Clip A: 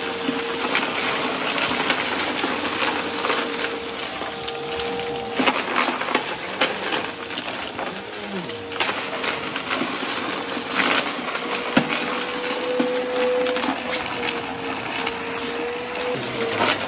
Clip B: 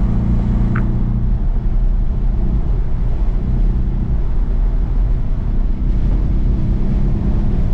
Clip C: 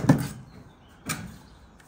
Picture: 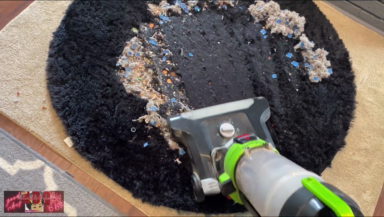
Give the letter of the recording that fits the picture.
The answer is A